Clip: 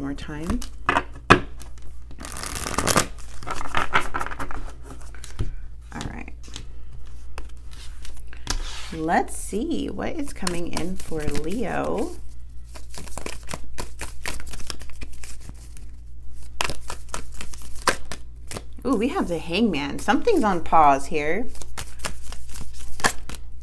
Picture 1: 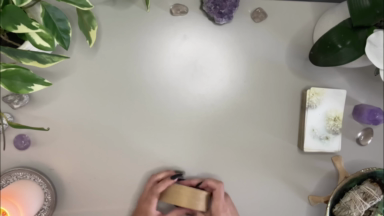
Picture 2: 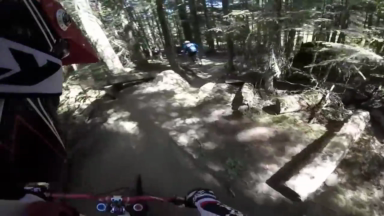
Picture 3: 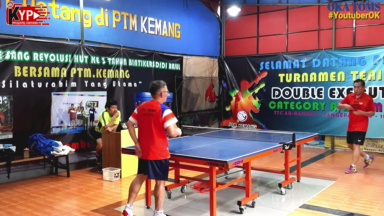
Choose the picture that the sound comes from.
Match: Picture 1